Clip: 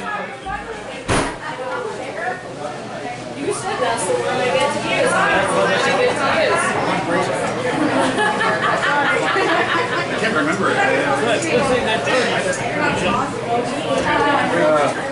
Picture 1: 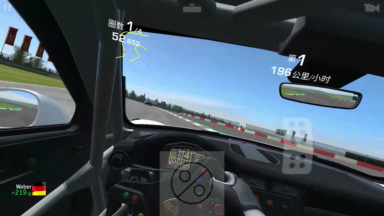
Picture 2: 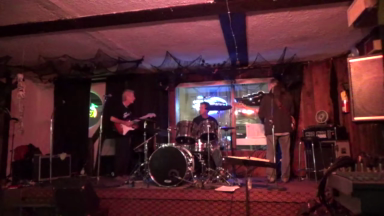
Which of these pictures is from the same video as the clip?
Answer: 2